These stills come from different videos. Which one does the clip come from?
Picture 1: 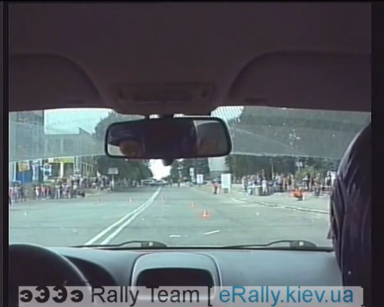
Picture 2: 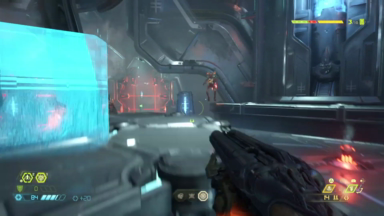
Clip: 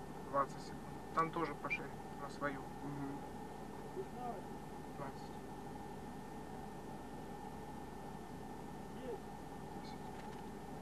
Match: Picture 1